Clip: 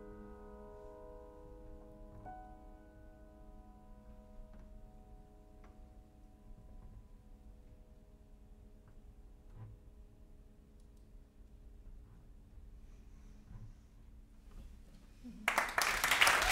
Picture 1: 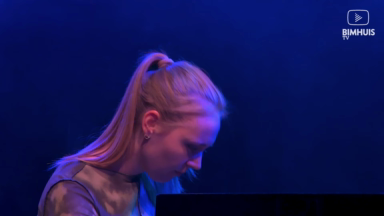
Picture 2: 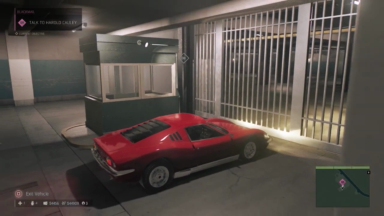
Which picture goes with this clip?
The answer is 1